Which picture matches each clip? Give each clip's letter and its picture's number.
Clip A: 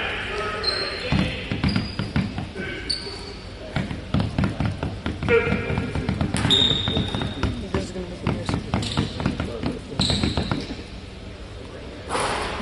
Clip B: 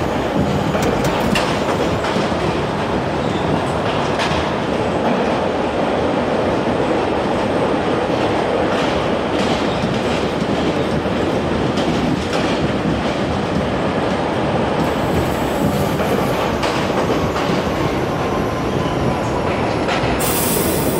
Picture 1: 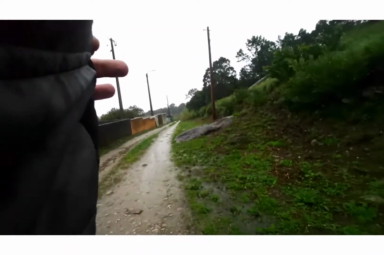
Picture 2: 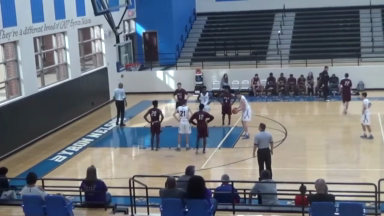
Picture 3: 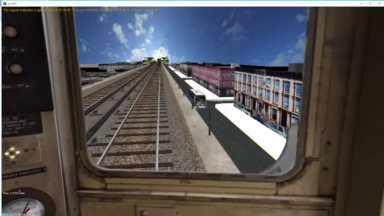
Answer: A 2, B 3